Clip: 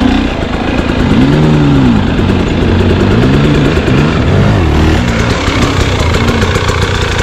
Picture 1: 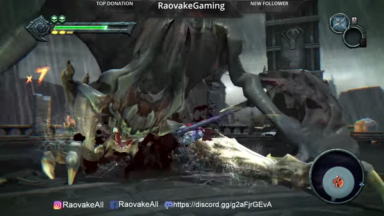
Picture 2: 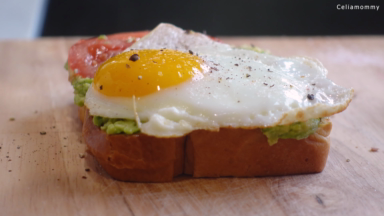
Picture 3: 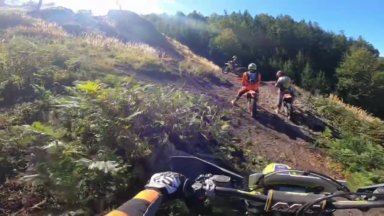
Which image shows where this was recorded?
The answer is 3